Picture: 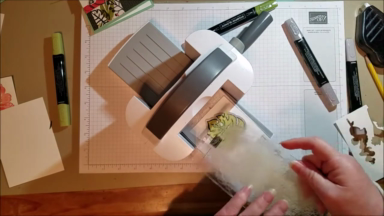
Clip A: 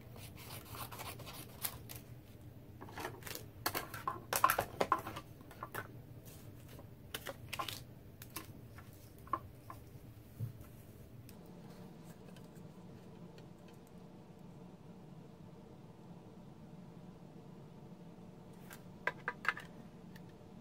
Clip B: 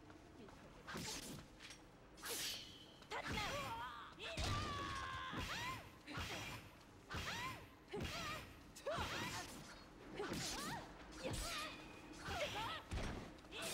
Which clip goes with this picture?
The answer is A